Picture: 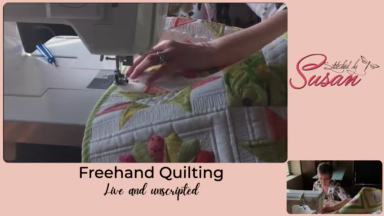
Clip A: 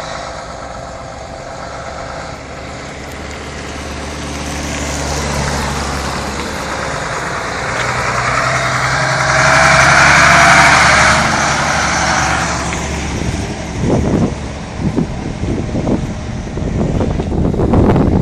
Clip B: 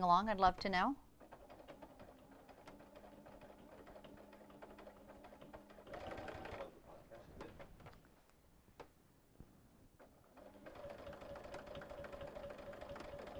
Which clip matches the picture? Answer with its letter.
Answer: B